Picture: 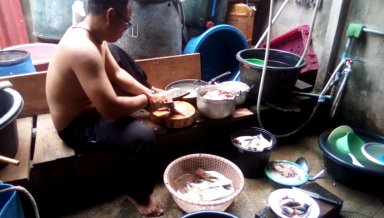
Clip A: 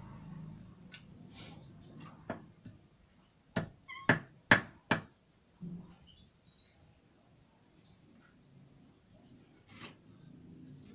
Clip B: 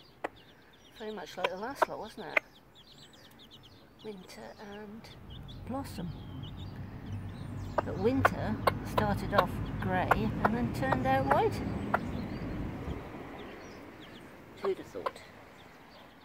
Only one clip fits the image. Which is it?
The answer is A